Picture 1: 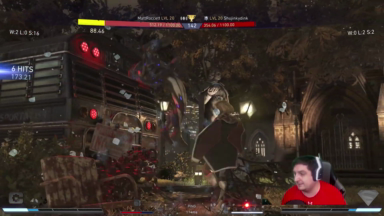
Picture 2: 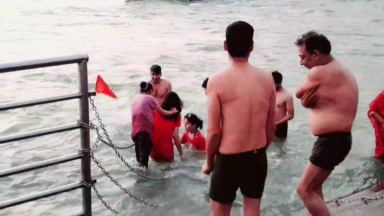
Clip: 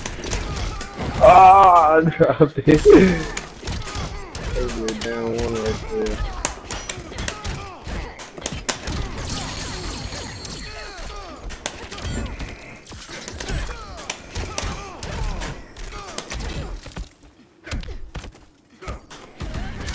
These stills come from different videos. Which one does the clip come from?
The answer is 1